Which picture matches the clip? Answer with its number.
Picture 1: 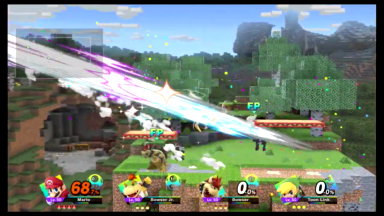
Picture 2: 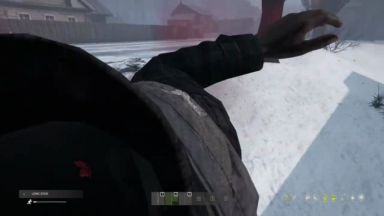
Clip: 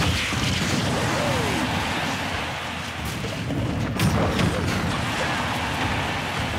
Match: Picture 1